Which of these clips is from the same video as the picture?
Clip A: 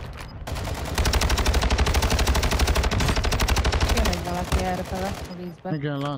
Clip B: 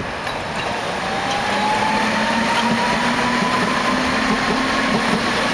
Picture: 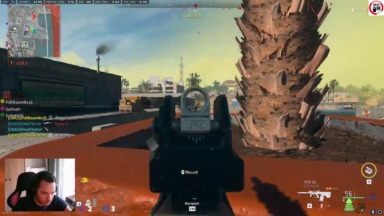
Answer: A